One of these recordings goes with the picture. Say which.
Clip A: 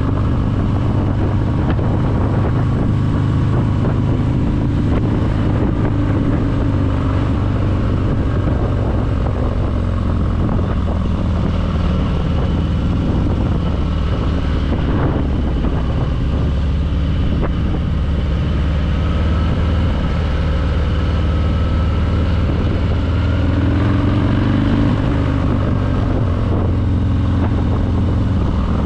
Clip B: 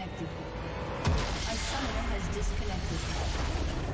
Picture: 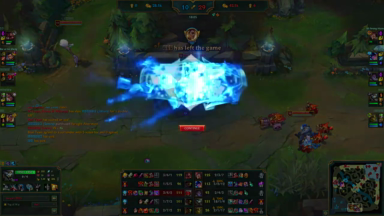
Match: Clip B